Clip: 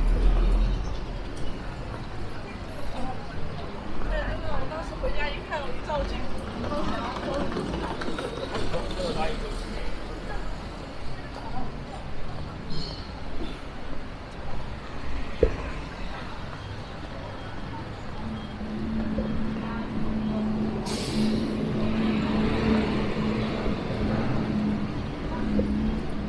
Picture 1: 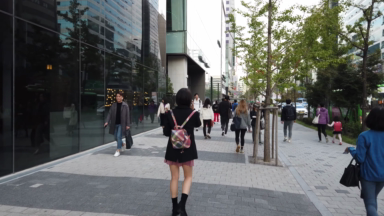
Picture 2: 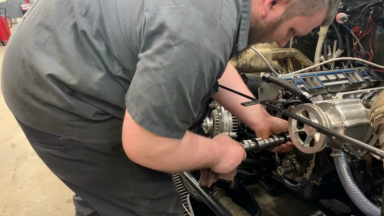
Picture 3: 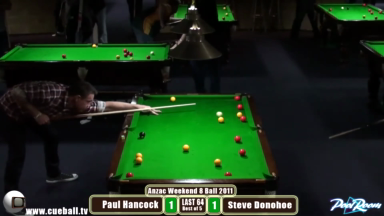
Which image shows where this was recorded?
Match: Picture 1